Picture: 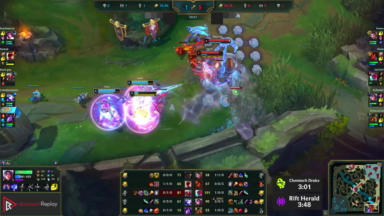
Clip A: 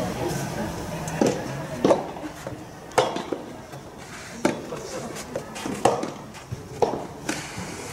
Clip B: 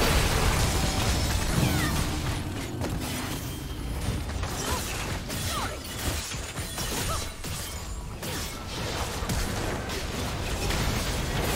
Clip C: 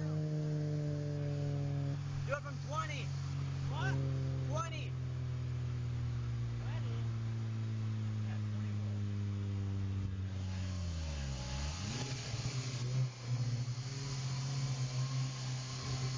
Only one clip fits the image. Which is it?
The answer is B